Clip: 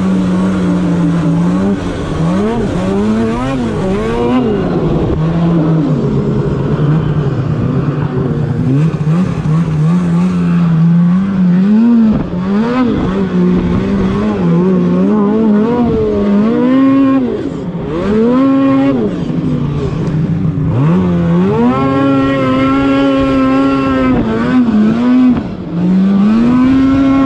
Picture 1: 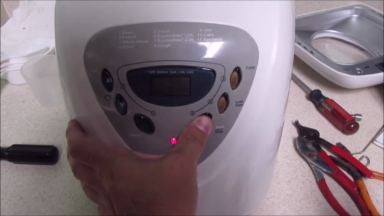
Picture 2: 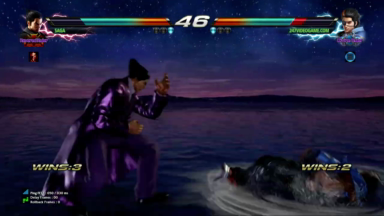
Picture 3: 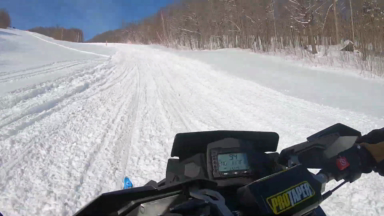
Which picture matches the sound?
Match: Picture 3